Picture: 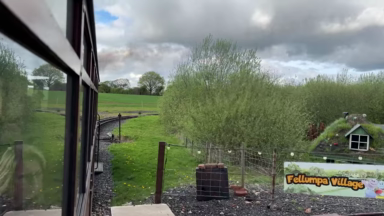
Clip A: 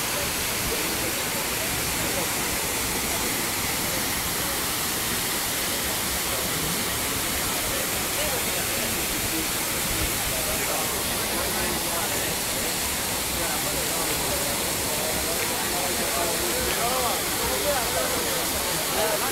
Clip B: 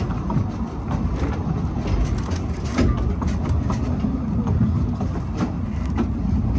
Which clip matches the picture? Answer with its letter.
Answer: B